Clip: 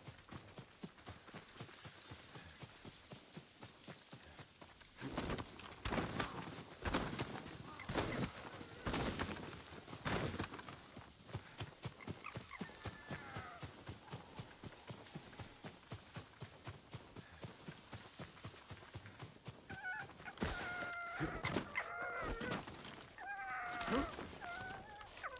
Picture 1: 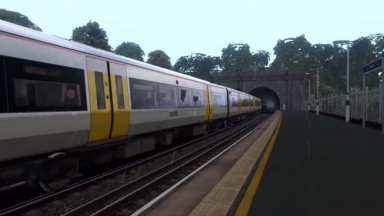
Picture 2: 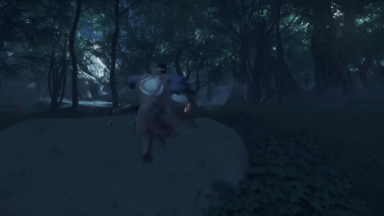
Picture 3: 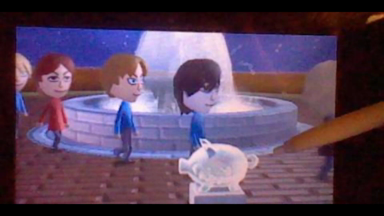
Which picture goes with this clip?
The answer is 2